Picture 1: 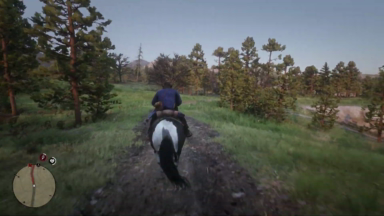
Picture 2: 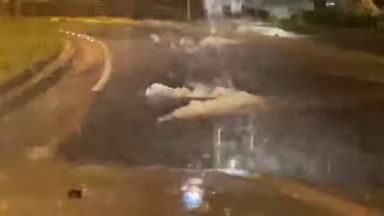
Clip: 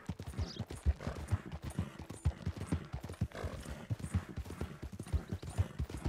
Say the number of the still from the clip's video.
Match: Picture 1